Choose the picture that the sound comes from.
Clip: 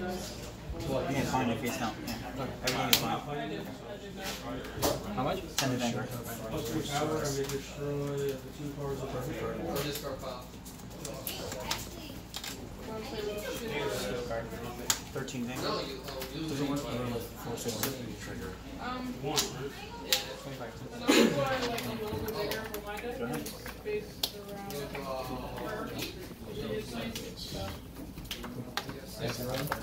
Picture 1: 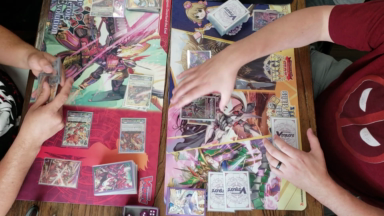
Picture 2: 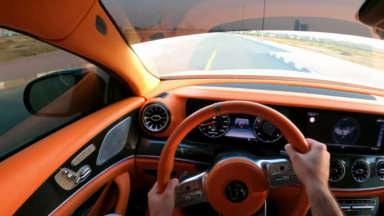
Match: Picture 1